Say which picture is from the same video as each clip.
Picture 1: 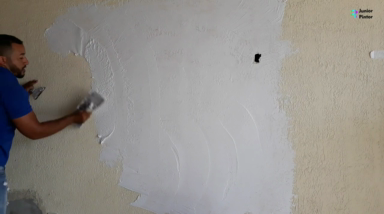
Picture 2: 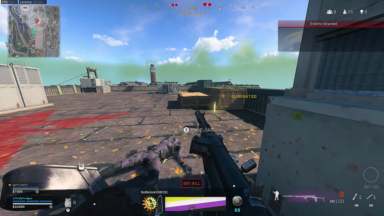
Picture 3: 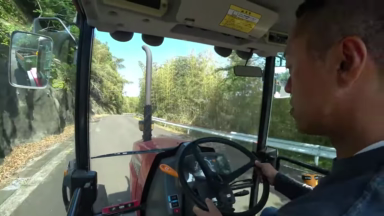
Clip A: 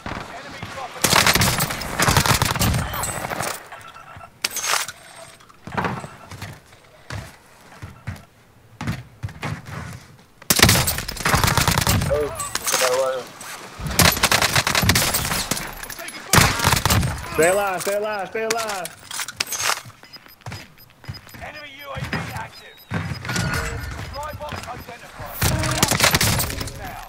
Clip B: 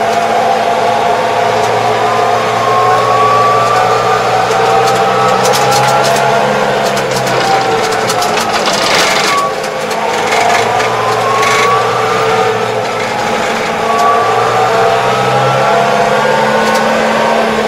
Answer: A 2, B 3